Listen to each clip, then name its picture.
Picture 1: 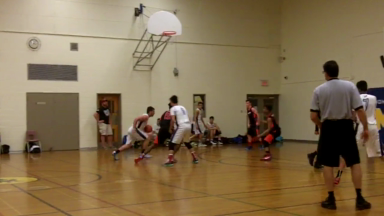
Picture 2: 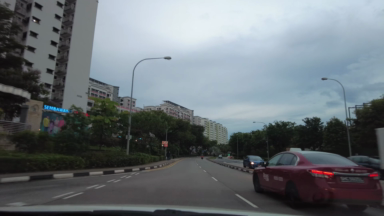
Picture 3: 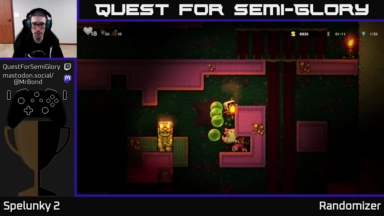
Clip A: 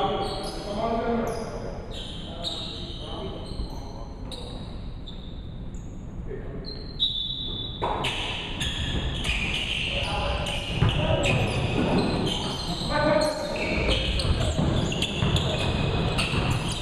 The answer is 1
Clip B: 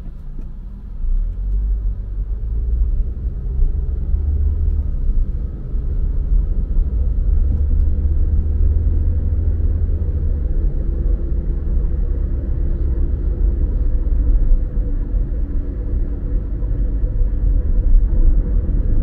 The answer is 2